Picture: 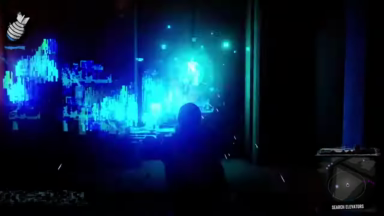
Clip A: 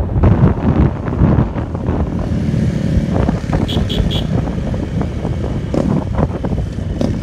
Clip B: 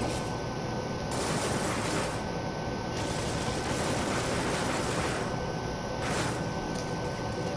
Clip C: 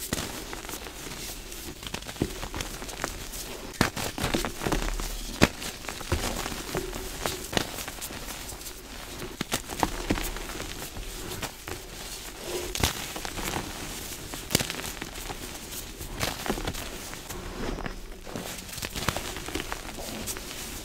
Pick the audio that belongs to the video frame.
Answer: B